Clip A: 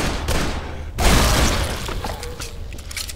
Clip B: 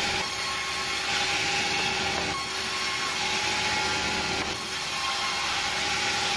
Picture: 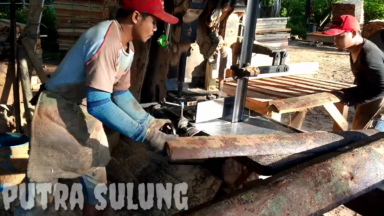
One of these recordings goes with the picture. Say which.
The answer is B